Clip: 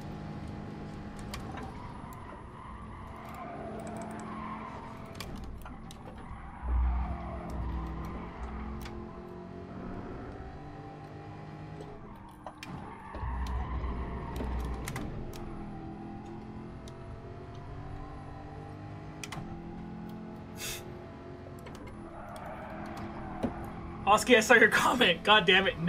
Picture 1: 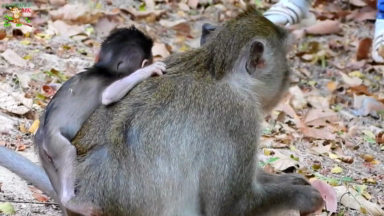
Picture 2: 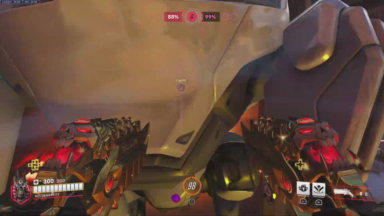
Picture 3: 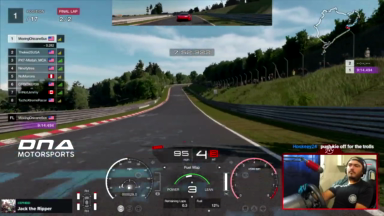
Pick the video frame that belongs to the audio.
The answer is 3